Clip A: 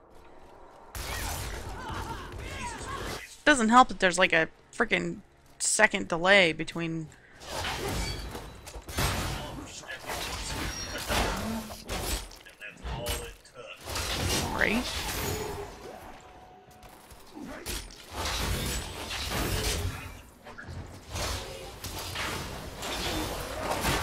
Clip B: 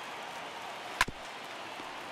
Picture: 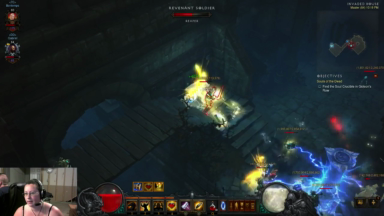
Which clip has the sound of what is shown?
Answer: A